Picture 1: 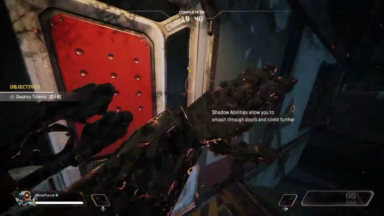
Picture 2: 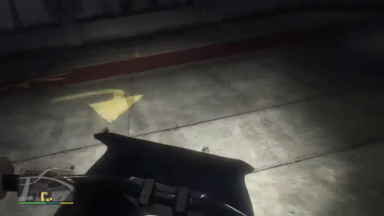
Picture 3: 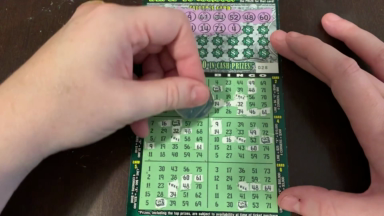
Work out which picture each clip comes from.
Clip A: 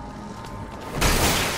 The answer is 1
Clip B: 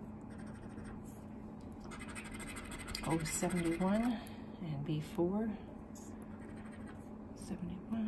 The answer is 3